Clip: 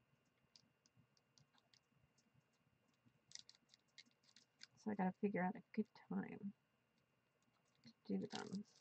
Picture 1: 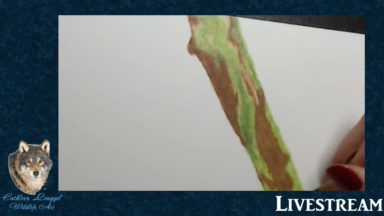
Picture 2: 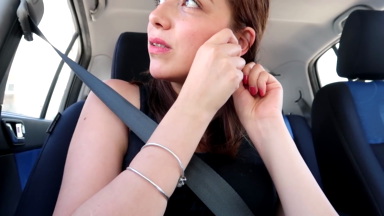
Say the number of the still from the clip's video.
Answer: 1